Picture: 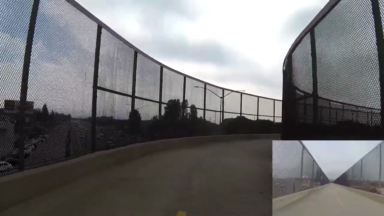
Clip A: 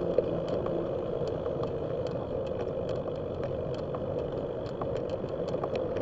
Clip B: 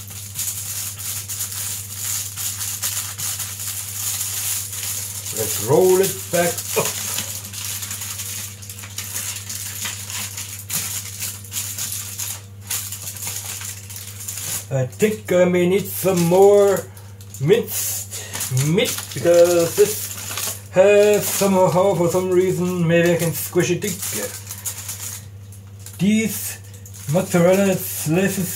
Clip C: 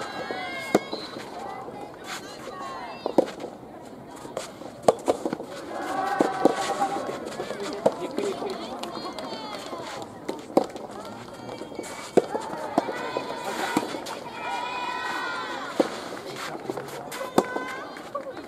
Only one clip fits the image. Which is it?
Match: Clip A